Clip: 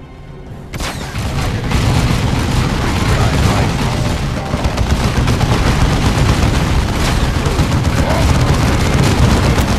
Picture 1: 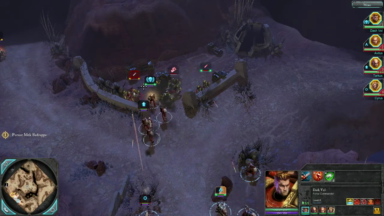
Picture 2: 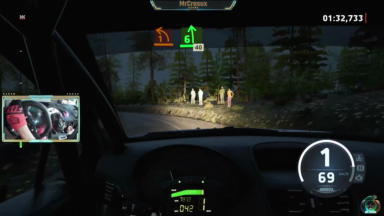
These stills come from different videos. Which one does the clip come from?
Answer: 1